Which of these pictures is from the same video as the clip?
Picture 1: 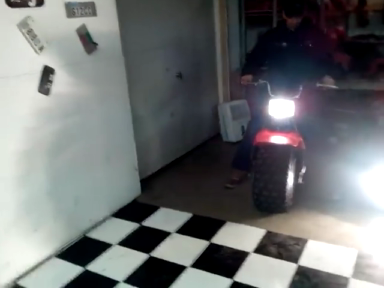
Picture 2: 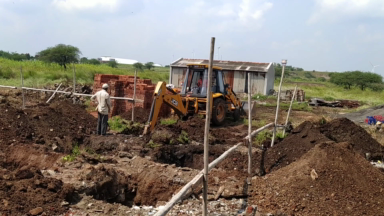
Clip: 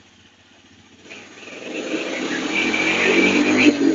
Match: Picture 1